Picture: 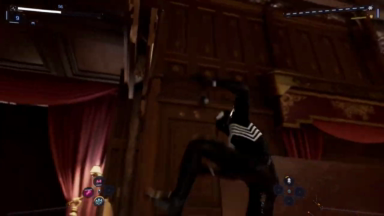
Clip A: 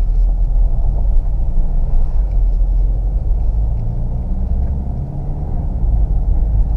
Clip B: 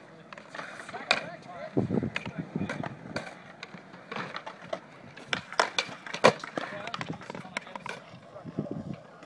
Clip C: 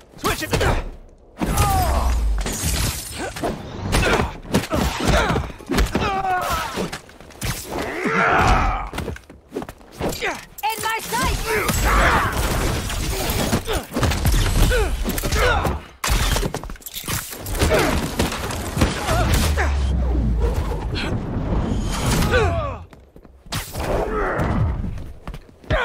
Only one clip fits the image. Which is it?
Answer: C